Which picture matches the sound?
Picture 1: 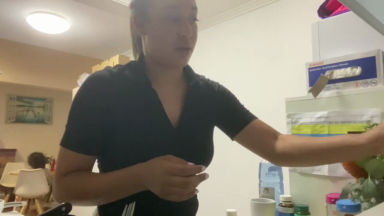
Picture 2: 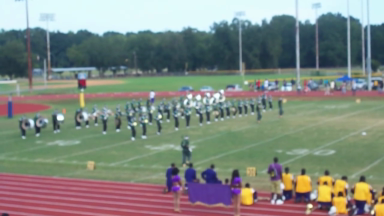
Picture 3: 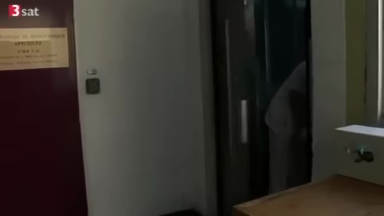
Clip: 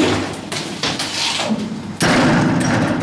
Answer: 3